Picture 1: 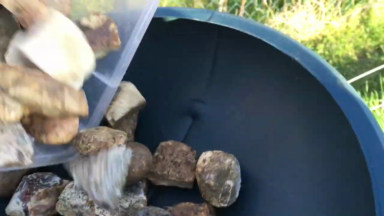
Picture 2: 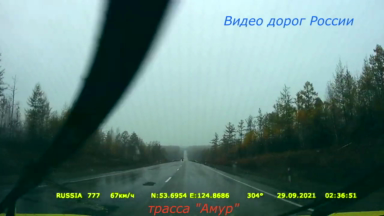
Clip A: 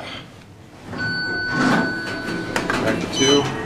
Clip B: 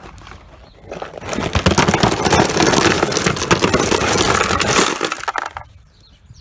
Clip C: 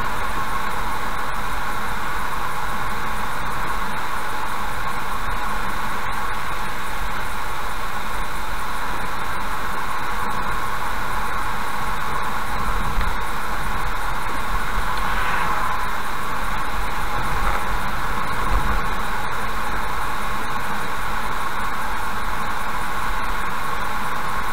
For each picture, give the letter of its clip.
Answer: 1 B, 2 C